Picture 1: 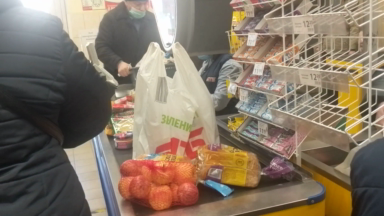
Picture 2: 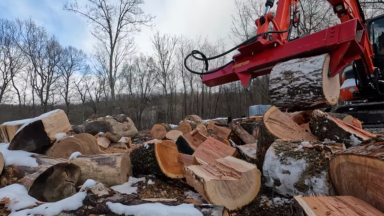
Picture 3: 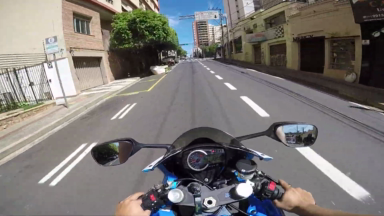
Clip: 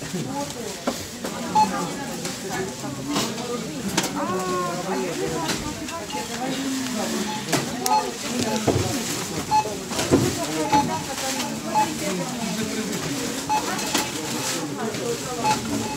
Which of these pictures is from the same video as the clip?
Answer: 1